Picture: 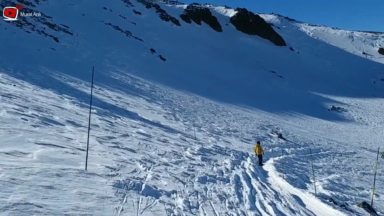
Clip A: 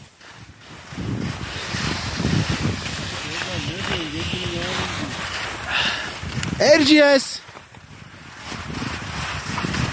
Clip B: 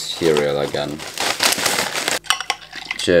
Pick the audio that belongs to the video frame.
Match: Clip A